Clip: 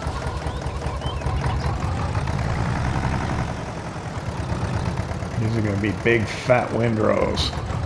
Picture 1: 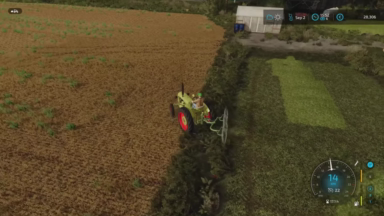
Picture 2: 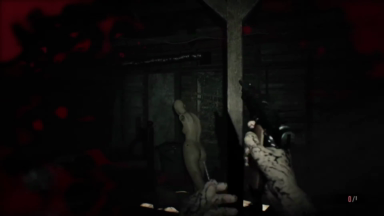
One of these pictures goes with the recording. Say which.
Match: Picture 1